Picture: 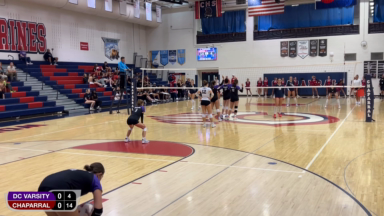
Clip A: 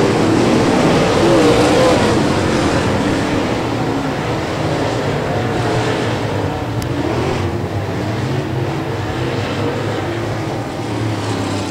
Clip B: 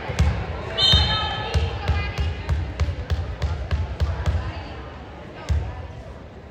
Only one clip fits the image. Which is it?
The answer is B